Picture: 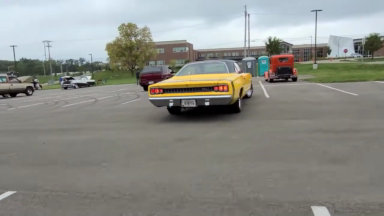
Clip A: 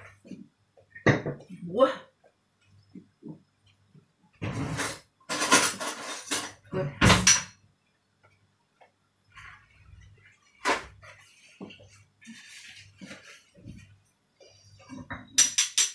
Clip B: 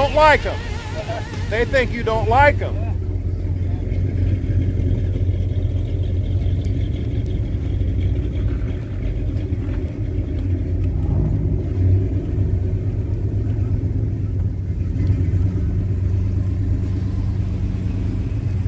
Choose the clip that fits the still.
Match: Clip B